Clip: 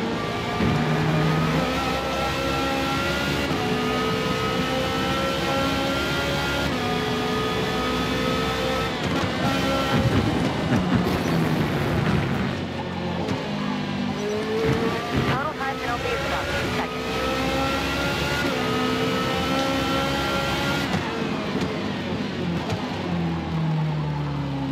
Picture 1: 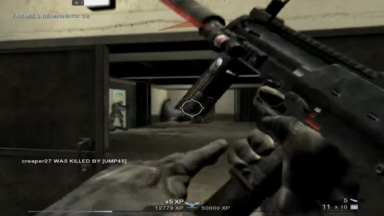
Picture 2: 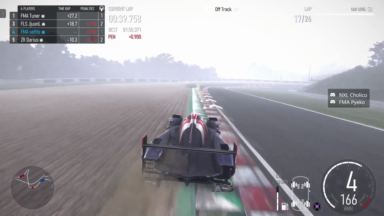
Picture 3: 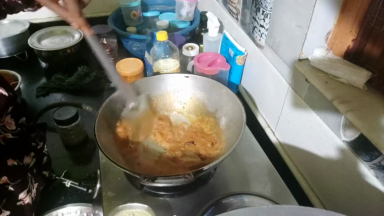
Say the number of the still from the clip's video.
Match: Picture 2